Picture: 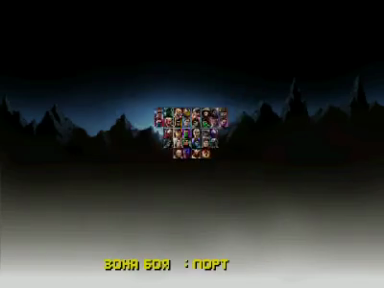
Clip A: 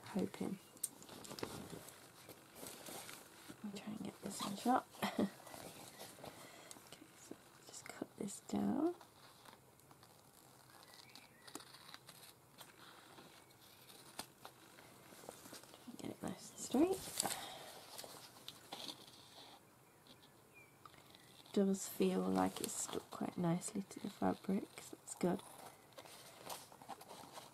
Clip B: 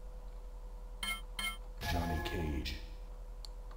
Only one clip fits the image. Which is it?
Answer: B